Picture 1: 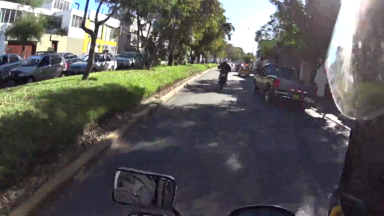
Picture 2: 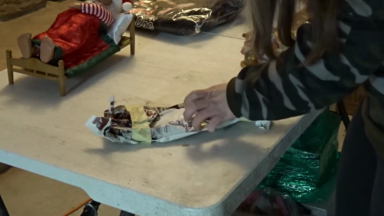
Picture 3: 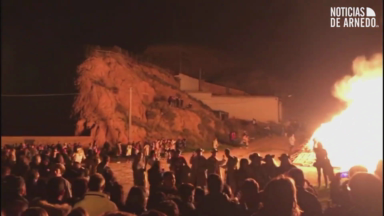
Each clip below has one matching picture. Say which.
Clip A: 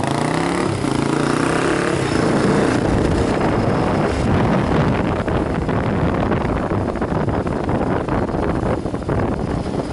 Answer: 1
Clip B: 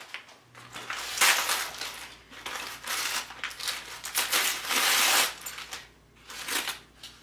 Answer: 2